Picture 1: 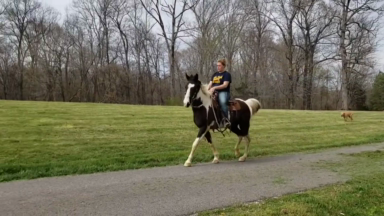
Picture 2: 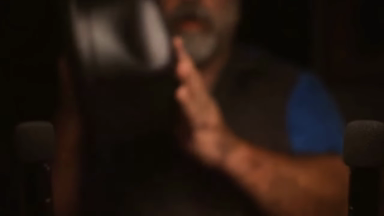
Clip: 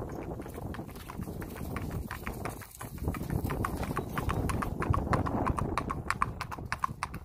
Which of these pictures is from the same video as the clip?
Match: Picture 1